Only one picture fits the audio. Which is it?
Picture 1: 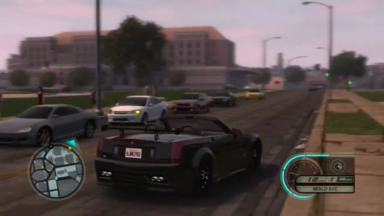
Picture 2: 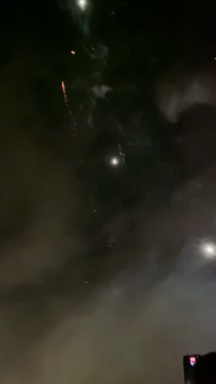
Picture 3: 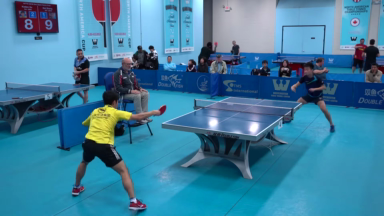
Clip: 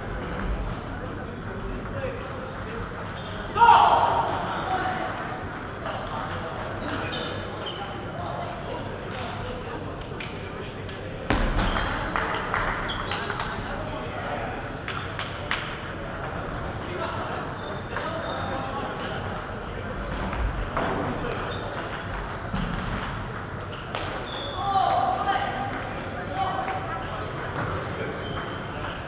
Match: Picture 3